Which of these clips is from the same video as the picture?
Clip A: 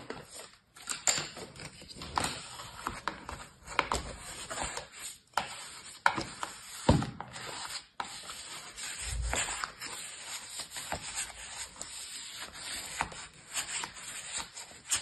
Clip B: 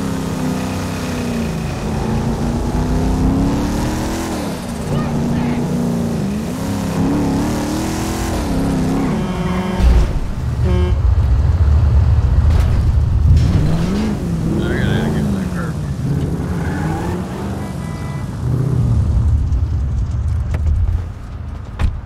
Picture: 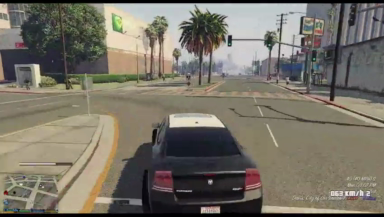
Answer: B